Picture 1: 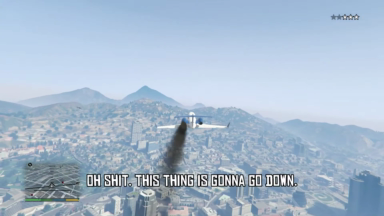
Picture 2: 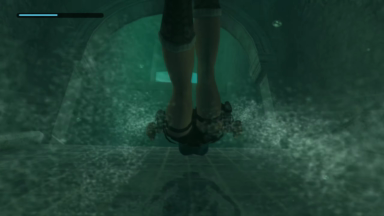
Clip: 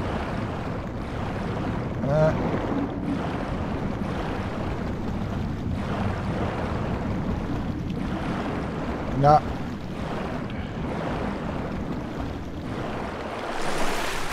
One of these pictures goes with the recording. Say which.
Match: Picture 2